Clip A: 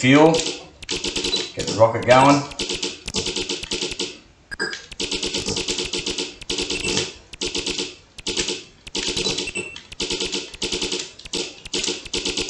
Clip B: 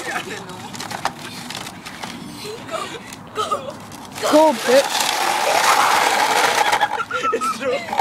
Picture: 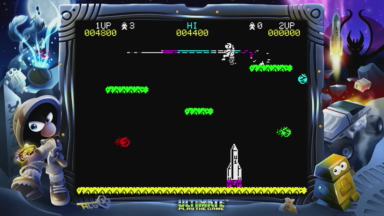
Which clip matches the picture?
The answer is A